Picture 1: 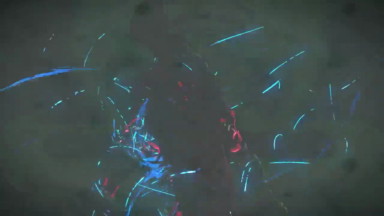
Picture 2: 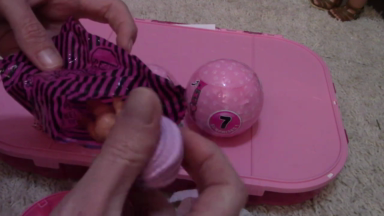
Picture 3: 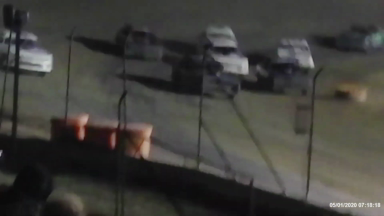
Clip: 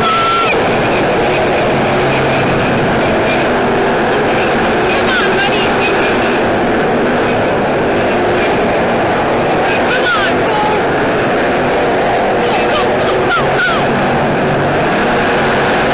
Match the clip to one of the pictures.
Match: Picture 3